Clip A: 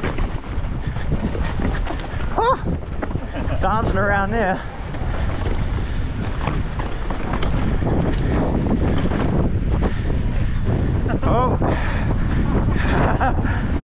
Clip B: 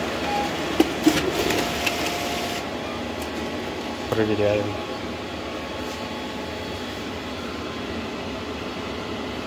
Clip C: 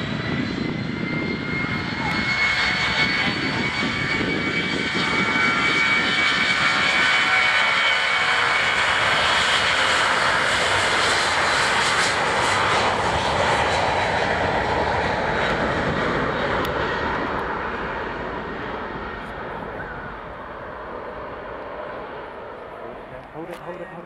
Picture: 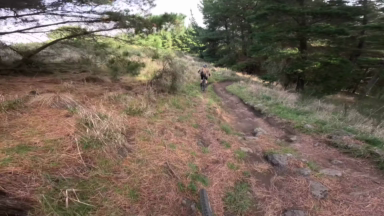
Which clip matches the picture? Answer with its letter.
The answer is A